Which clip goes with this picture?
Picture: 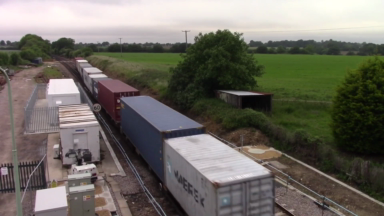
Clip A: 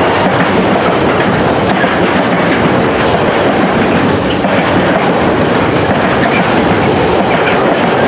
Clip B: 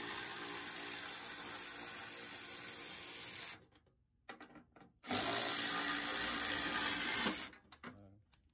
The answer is A